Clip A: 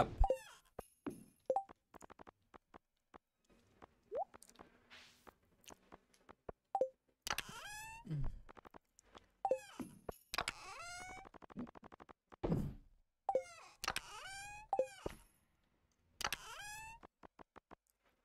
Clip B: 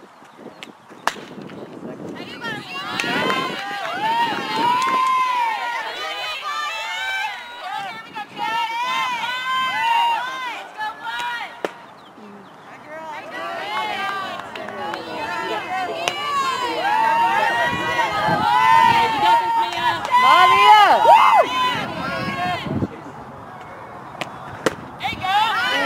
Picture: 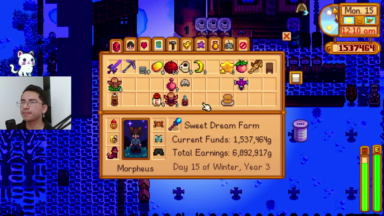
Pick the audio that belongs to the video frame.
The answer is A